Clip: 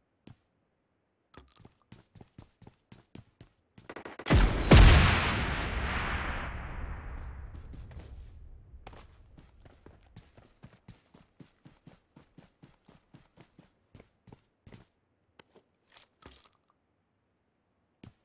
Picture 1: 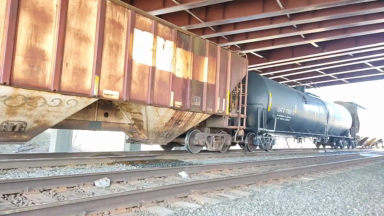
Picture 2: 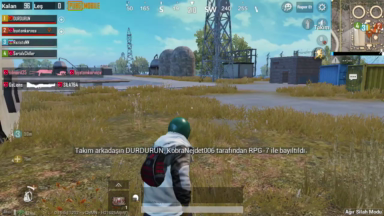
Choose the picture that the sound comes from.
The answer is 2